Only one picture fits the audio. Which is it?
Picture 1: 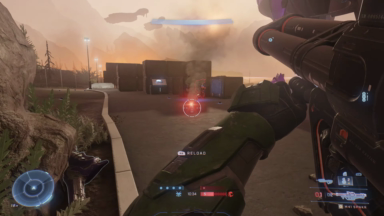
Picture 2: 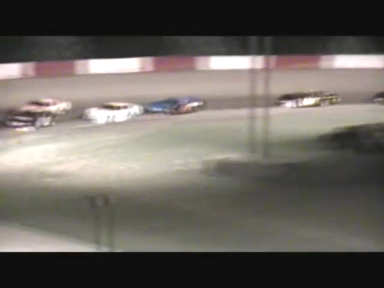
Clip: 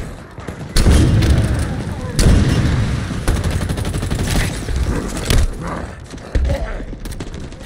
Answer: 1